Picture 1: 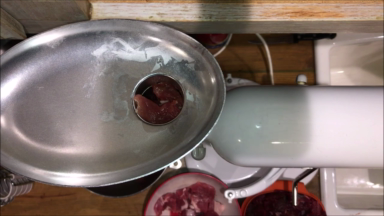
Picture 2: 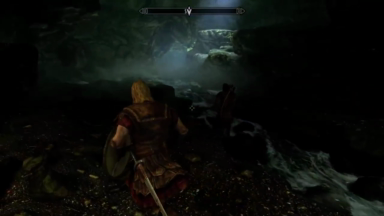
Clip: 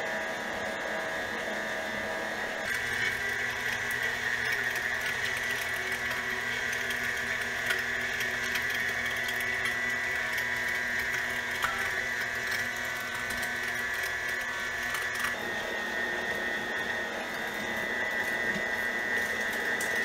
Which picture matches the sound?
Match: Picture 1